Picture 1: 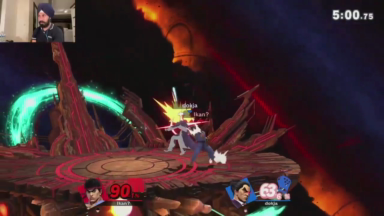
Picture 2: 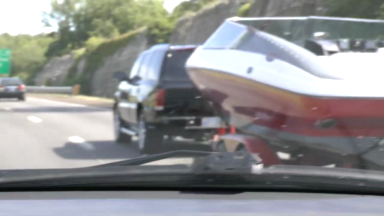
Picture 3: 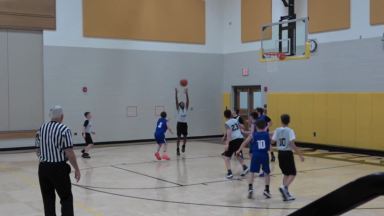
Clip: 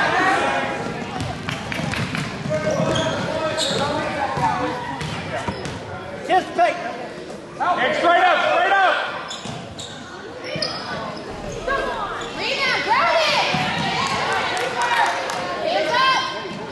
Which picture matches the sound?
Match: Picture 3